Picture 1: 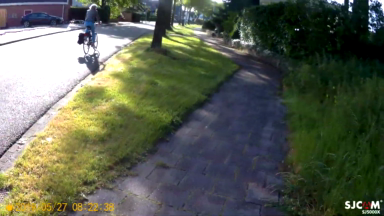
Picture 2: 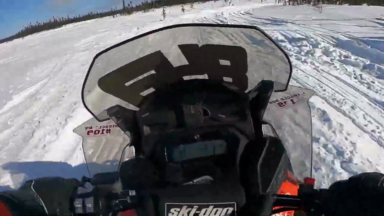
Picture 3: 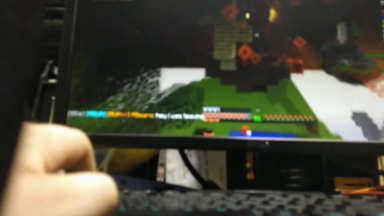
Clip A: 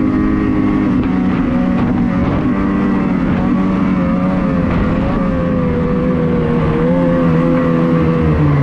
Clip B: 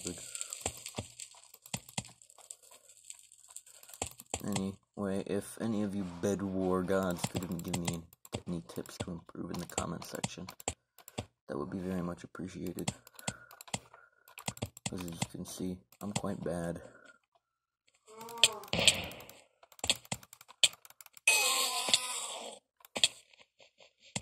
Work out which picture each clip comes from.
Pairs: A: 2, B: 3